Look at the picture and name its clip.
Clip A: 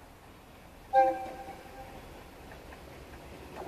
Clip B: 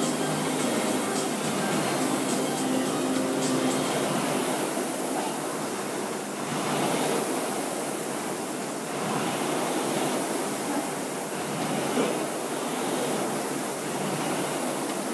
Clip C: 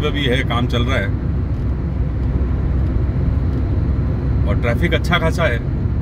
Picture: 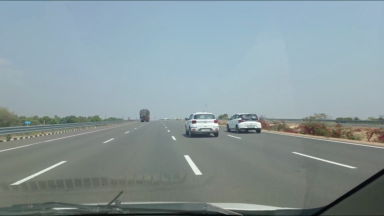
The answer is C